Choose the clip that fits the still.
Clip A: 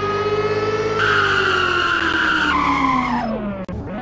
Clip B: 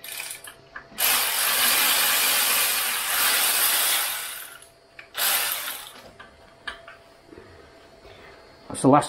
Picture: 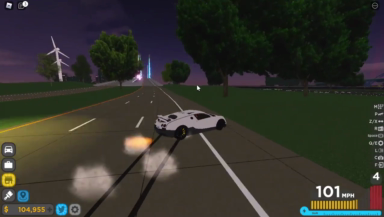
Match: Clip A